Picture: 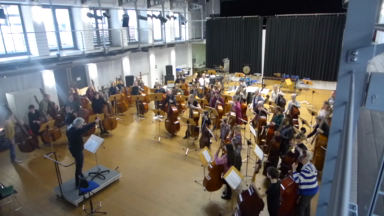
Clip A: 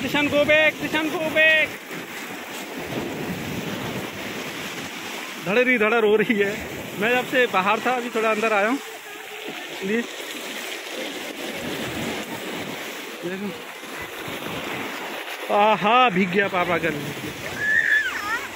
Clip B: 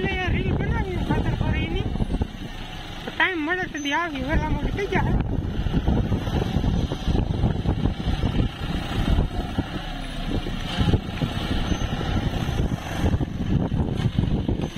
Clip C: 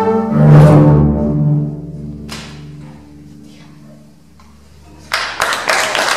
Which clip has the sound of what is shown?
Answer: C